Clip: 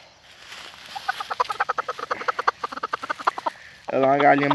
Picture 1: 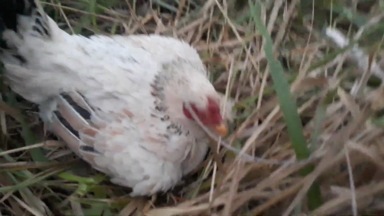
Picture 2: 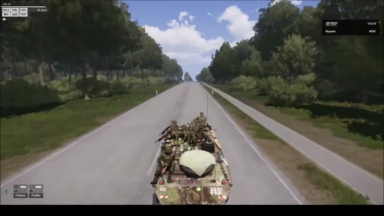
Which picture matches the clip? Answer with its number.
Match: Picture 1